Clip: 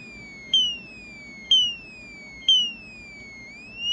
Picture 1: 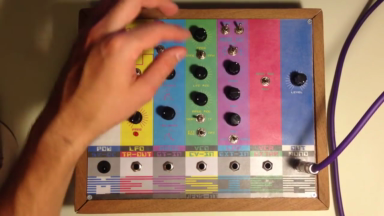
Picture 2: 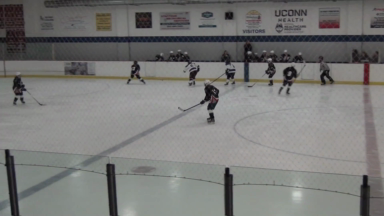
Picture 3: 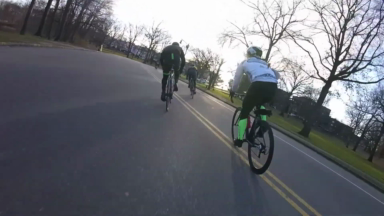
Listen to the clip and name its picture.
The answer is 1